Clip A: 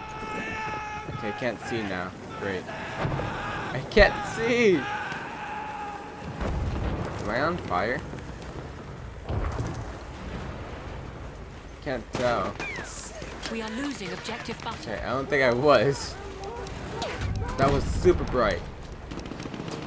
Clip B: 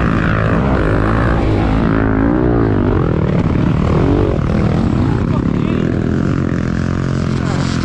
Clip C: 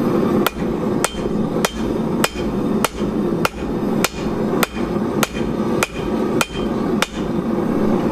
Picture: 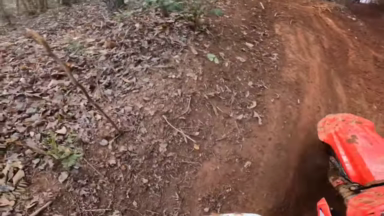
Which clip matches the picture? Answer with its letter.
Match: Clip B